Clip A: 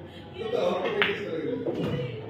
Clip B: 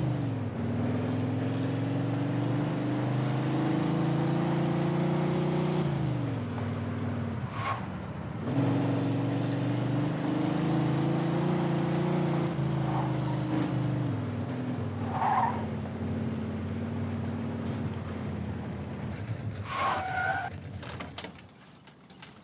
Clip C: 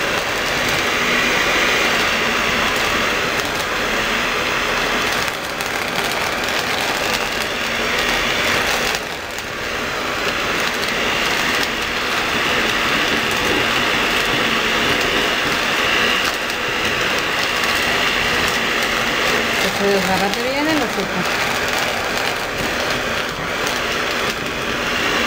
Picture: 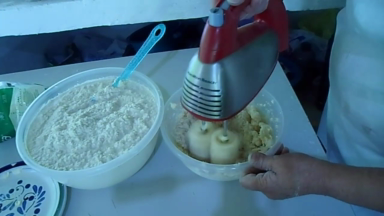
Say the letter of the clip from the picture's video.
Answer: C